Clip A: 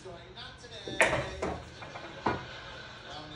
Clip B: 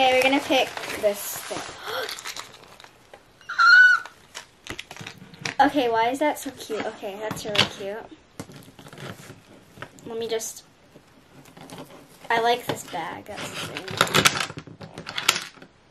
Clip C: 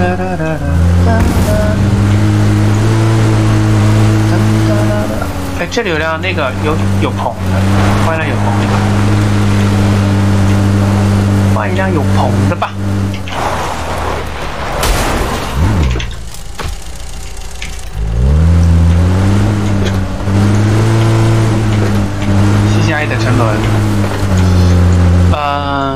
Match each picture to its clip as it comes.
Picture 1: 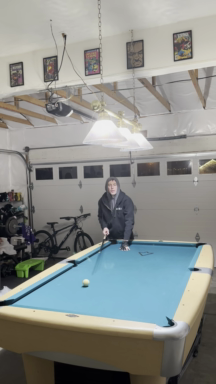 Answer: A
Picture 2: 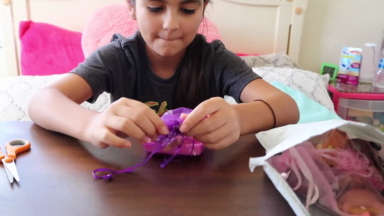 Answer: B